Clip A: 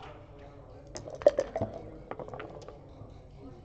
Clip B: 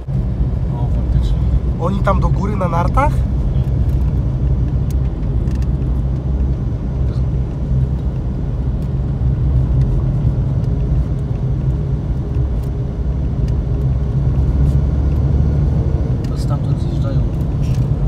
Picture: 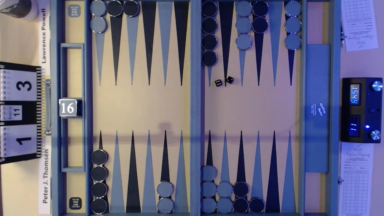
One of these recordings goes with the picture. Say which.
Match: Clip A